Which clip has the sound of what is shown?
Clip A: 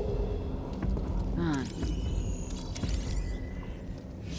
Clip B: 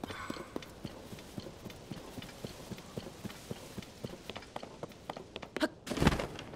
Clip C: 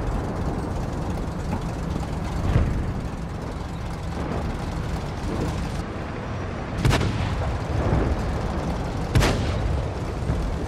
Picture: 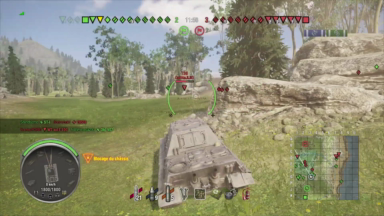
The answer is C